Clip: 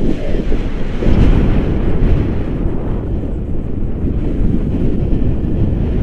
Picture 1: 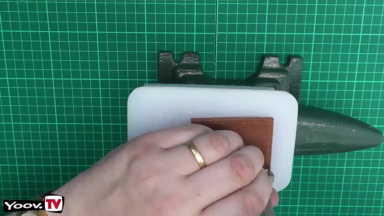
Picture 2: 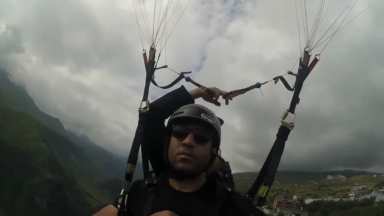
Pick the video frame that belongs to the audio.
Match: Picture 2